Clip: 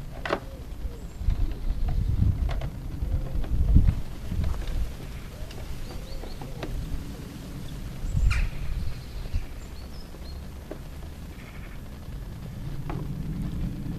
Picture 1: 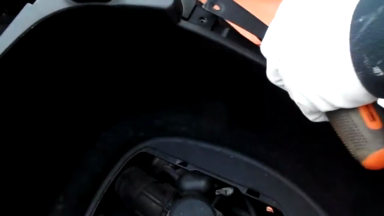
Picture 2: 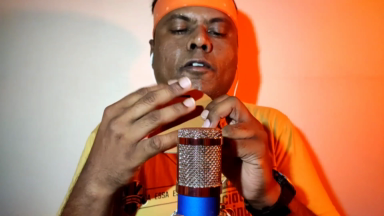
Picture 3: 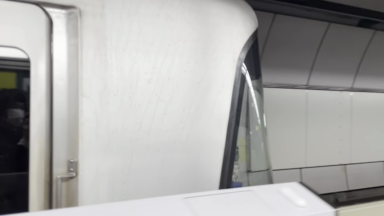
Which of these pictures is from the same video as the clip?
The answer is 1